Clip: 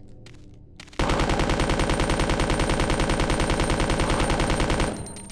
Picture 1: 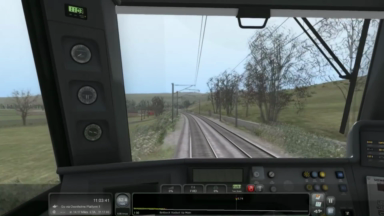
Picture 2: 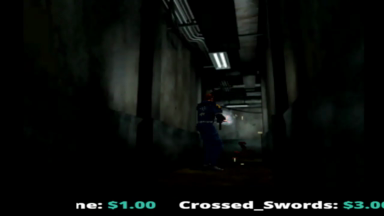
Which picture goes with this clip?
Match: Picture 2